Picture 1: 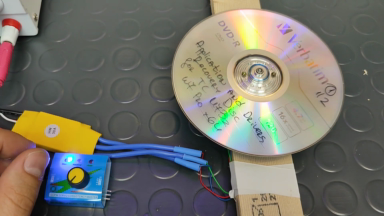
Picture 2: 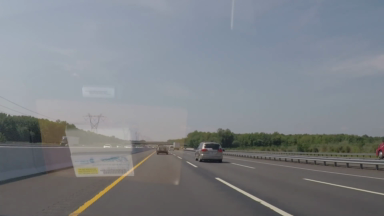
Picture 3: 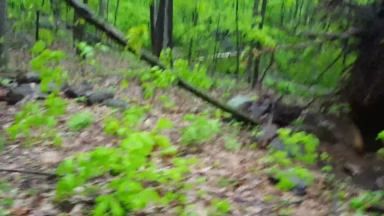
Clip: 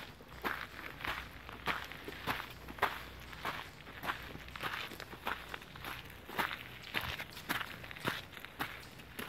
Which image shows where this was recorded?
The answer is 3